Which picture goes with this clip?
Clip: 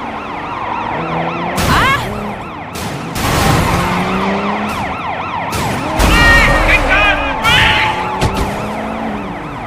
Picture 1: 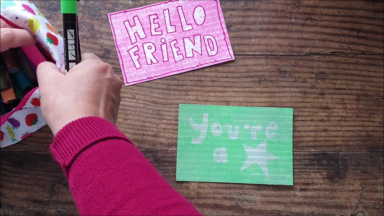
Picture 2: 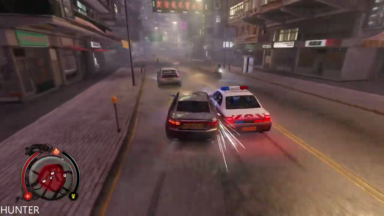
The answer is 2